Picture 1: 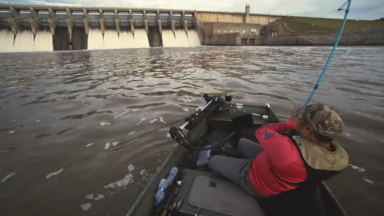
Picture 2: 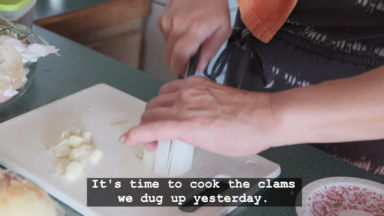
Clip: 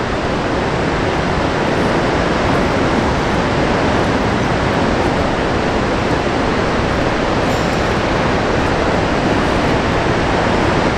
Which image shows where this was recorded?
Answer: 1